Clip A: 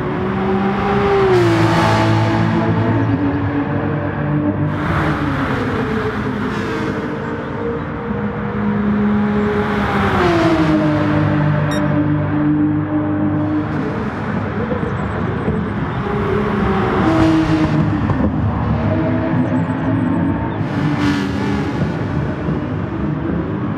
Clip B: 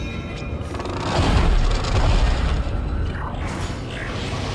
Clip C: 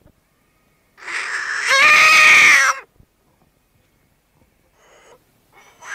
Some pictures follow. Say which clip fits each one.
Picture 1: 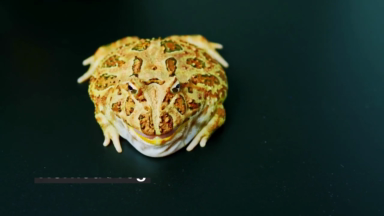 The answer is C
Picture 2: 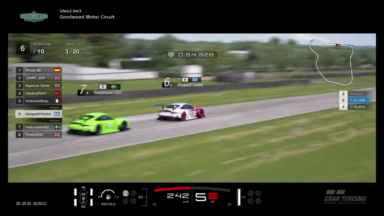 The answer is A